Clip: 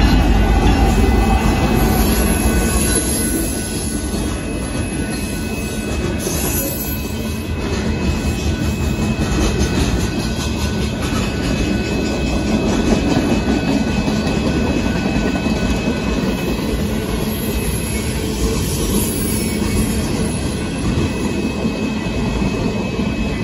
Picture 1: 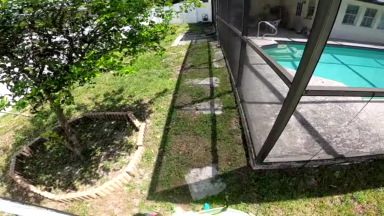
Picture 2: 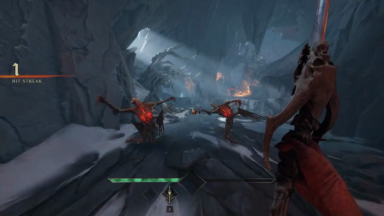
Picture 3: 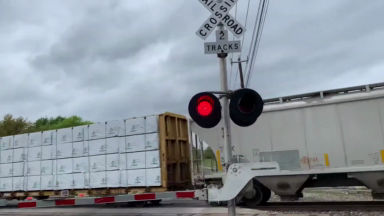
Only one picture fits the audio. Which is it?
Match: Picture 3